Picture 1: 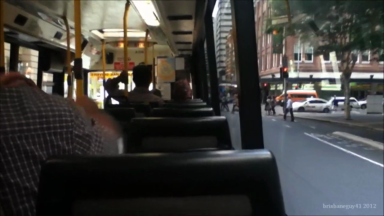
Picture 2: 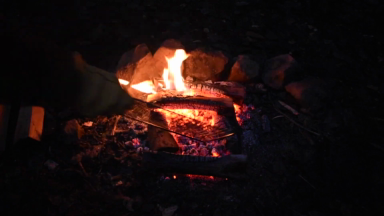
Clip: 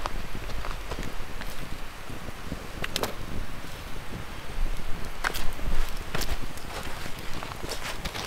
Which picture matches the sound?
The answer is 2